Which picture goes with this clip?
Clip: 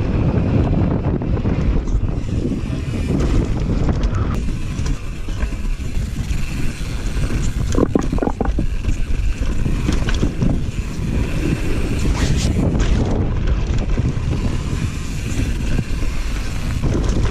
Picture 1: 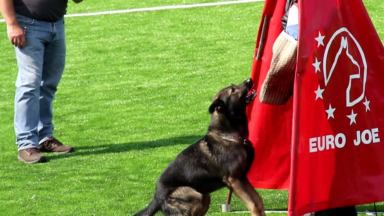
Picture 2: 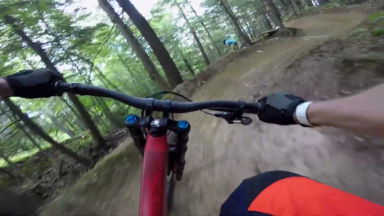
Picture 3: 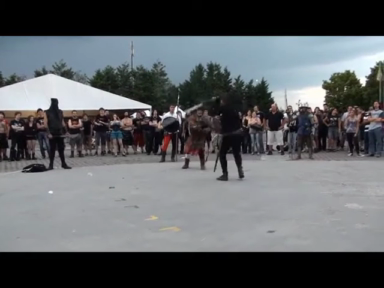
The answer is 2